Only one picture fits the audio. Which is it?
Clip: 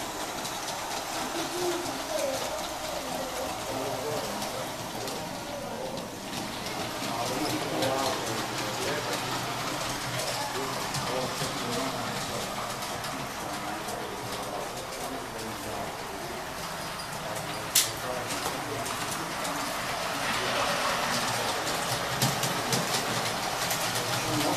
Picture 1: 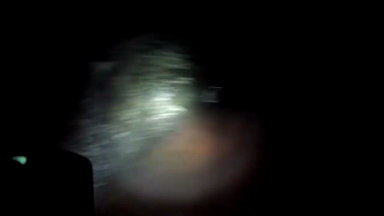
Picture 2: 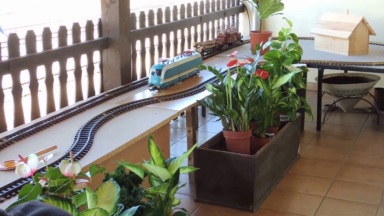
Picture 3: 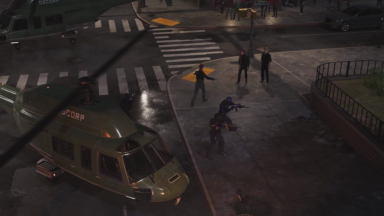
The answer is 2